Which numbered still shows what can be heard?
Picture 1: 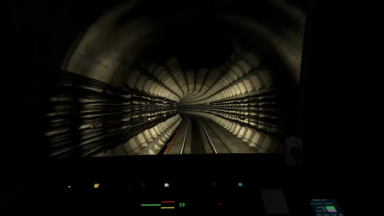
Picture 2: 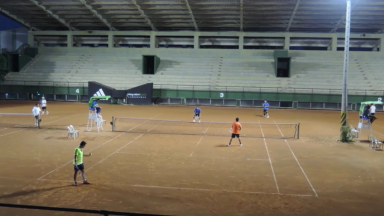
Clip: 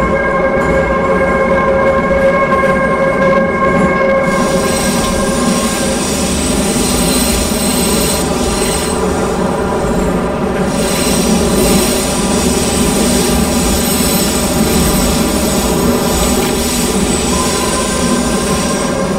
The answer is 1